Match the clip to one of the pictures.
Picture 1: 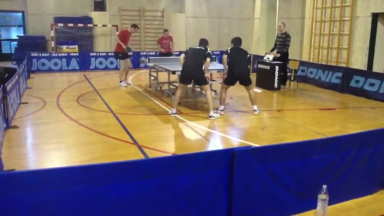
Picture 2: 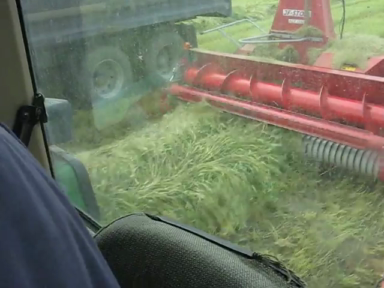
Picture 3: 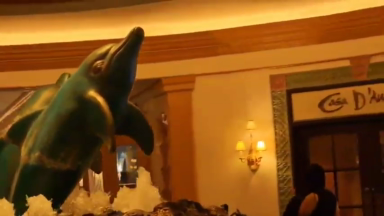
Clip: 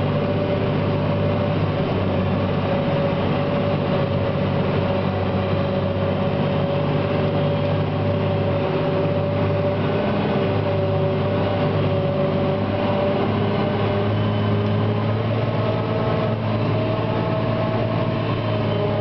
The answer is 2